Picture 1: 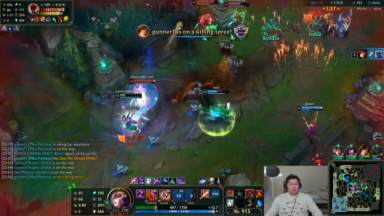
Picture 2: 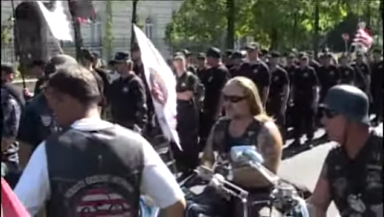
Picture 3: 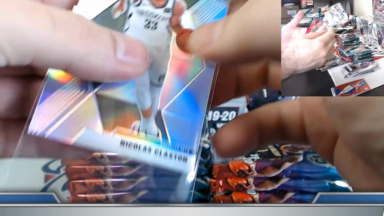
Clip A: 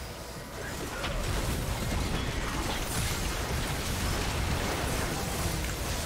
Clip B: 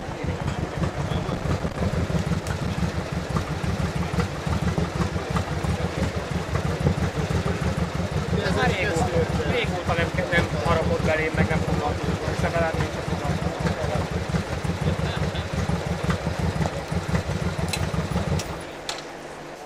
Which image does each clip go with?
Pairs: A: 1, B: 2